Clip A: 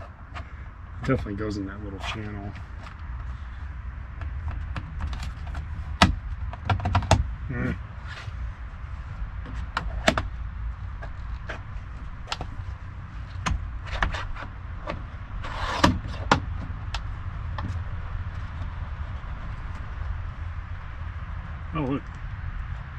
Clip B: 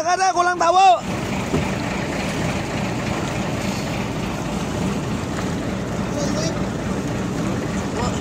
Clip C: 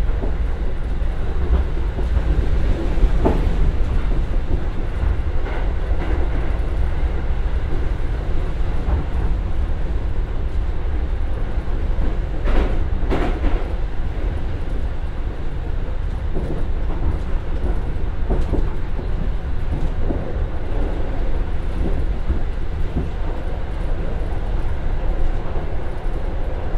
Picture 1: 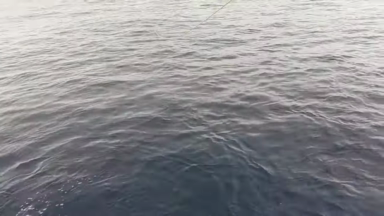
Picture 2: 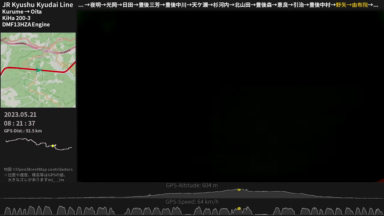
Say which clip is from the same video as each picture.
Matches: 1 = B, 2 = C